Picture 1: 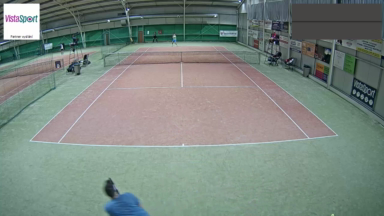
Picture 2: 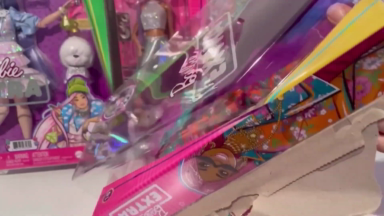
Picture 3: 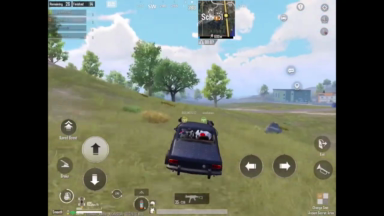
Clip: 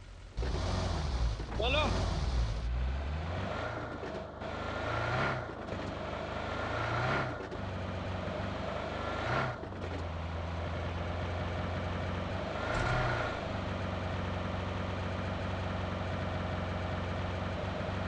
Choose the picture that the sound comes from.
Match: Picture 3